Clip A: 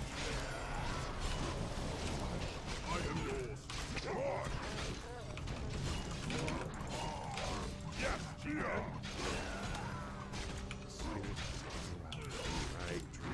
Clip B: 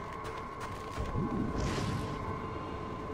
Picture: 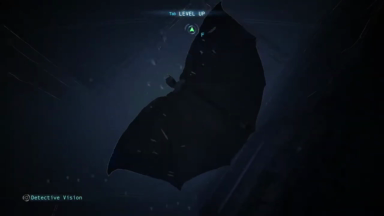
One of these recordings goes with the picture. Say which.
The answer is B